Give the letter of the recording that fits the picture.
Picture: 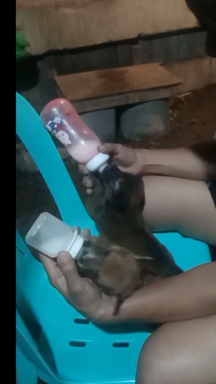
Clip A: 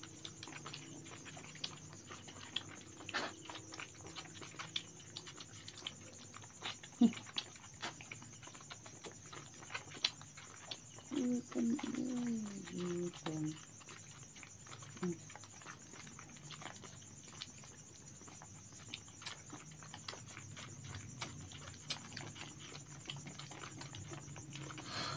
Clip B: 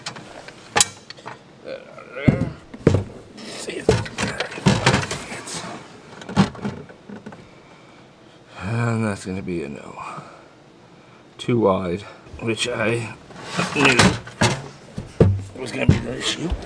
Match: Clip A